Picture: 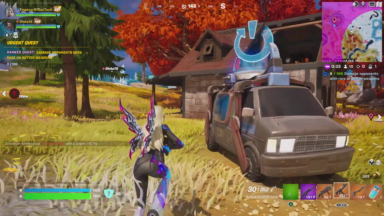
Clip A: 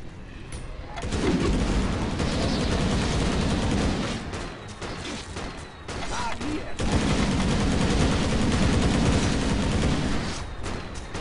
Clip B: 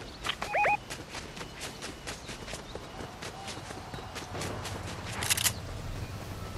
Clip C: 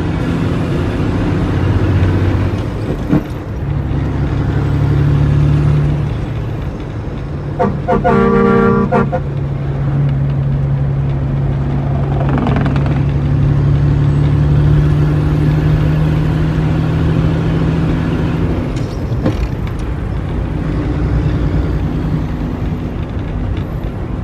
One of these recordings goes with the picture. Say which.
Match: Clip B